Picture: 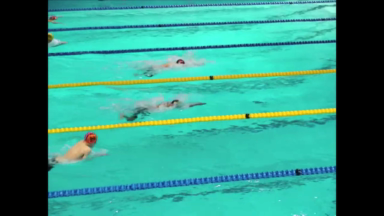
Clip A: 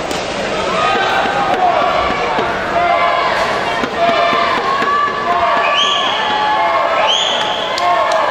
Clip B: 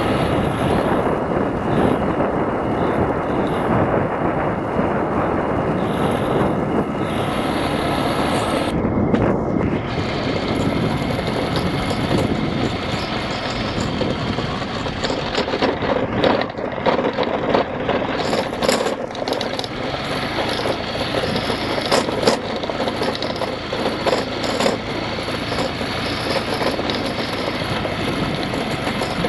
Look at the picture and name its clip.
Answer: A